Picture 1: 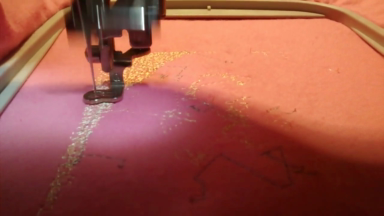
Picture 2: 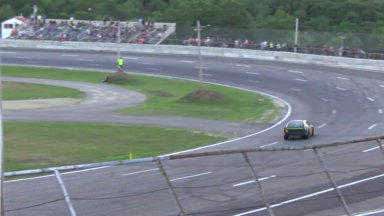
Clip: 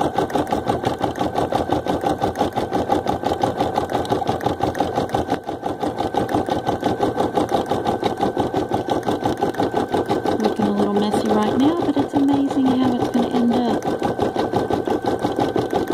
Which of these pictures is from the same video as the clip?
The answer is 1